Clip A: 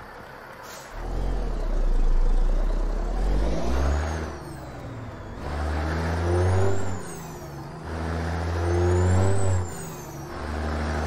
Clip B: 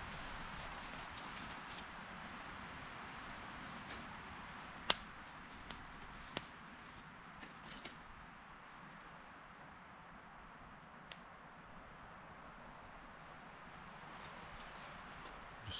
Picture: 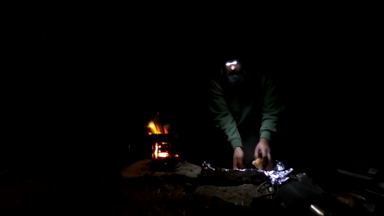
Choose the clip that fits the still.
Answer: B